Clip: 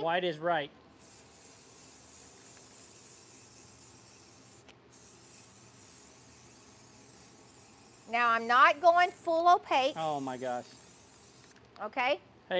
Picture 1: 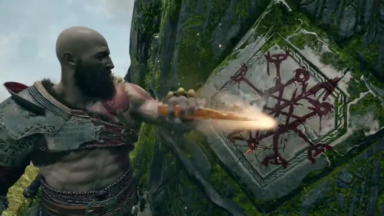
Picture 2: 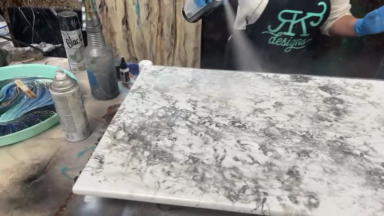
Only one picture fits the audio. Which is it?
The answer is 2